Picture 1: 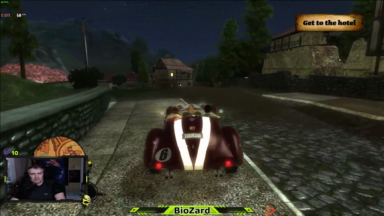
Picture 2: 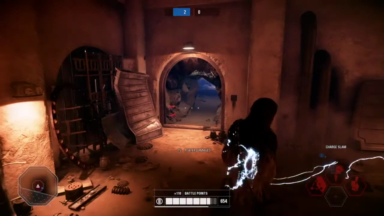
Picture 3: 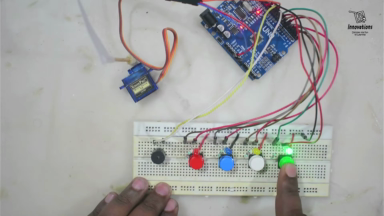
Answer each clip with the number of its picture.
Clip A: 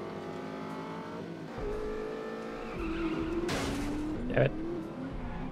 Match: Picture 1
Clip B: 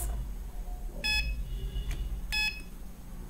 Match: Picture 3